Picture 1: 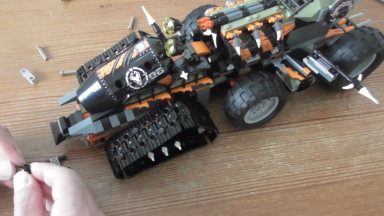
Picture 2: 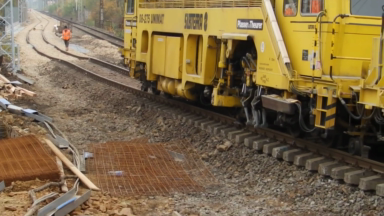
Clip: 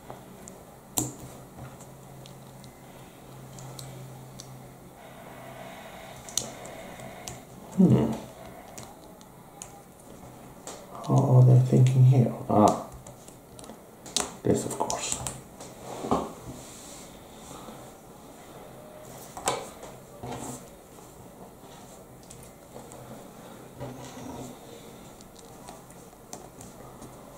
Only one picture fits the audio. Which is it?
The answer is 1